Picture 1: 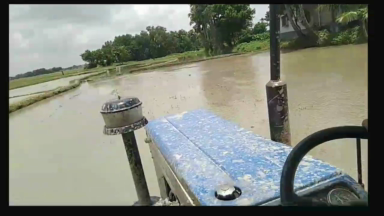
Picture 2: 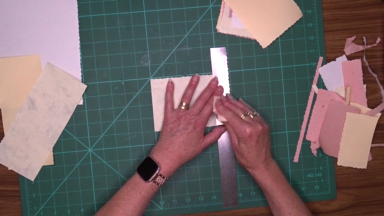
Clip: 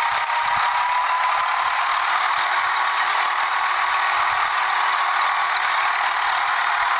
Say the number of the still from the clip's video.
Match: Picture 1